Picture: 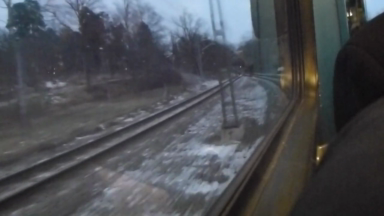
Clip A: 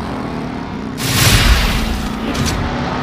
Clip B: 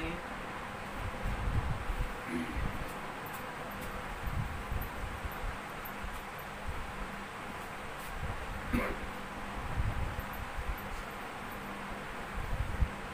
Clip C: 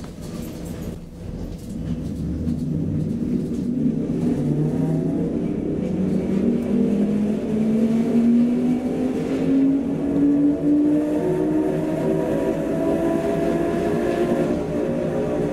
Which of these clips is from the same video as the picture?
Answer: C